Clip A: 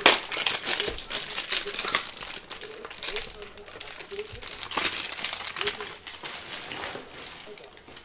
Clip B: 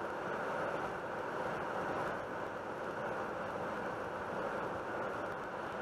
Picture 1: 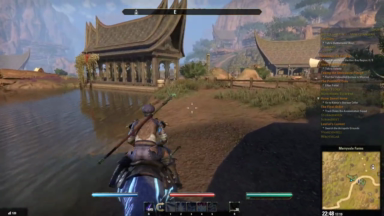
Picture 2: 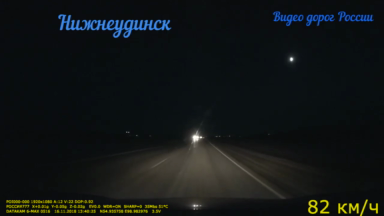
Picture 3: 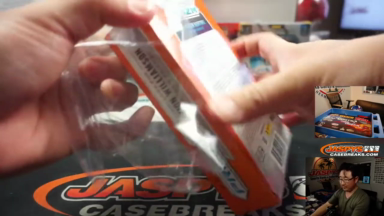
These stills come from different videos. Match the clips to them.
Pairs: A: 3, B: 2